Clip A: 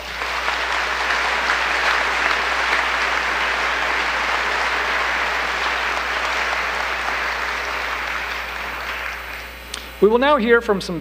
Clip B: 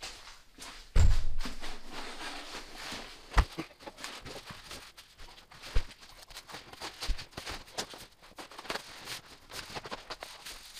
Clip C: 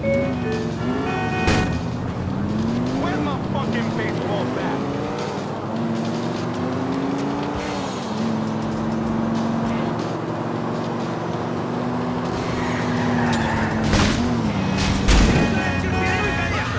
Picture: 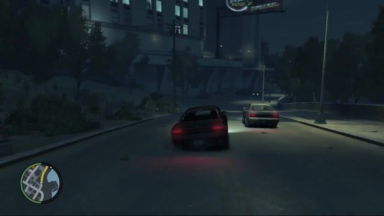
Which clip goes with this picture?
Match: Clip C